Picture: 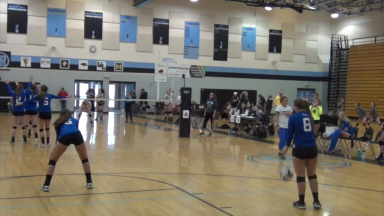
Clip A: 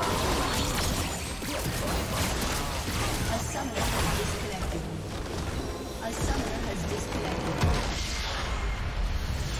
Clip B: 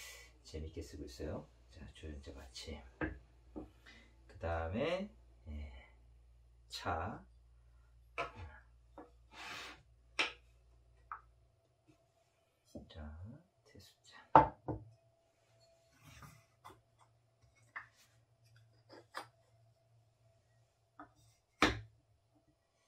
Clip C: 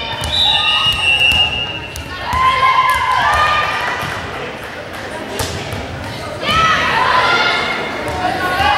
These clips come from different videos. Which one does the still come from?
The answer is C